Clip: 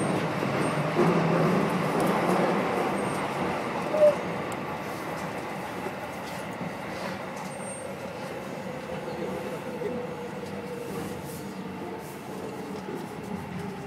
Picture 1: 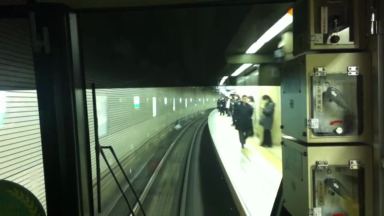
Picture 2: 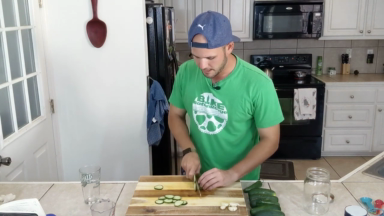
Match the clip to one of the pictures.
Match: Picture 1